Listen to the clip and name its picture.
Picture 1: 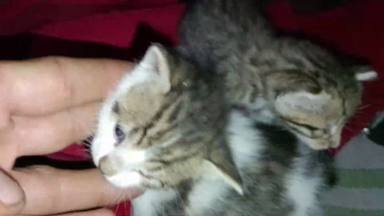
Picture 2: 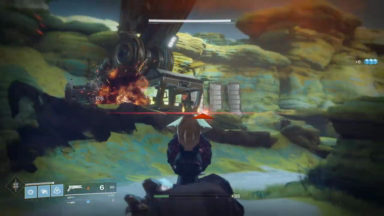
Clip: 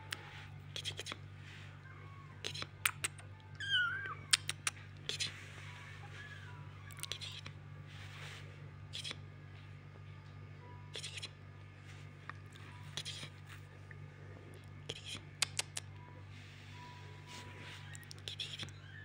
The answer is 1